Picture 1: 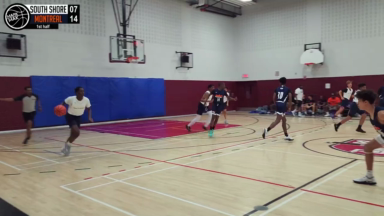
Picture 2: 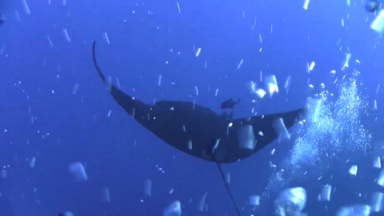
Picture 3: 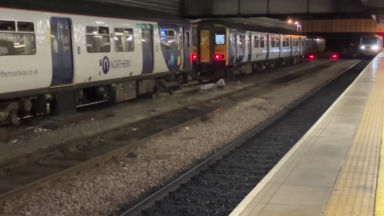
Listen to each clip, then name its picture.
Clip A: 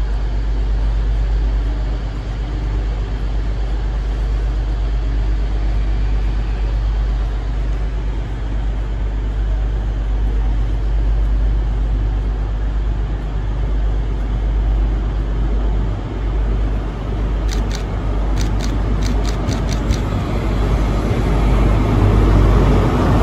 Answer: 3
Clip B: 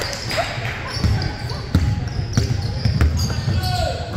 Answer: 1